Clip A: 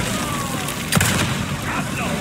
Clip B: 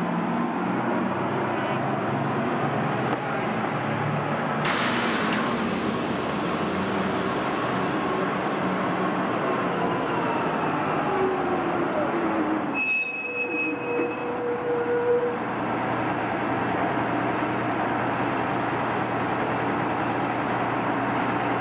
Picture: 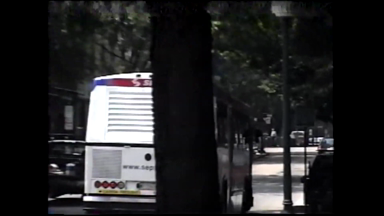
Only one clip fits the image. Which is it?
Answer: B